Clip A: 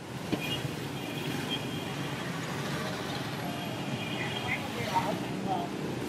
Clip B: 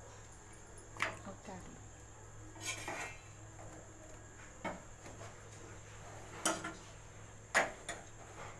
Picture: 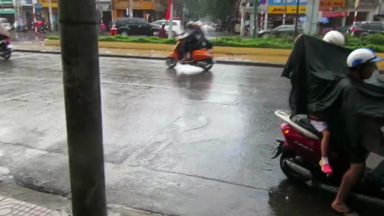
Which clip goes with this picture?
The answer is A